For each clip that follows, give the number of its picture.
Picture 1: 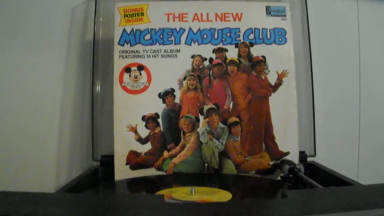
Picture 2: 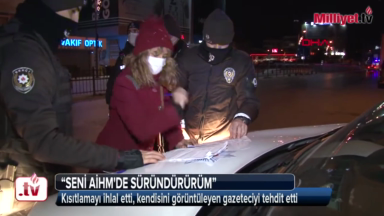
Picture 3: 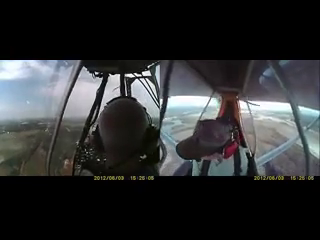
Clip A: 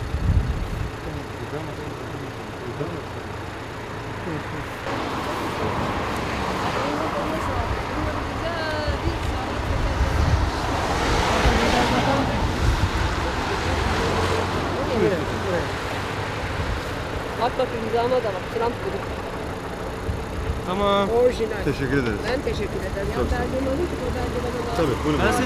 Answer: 2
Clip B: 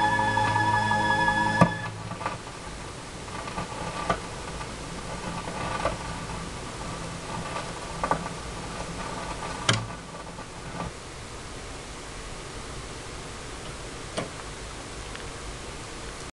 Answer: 1